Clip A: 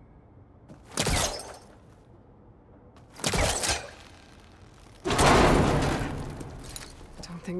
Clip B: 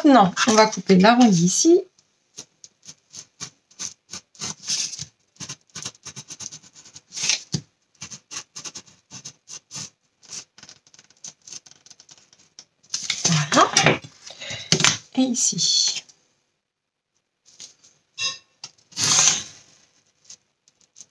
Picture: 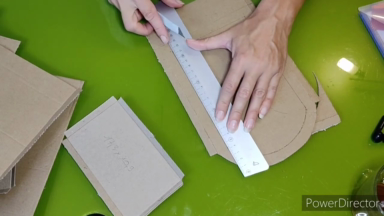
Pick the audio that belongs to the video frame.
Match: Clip B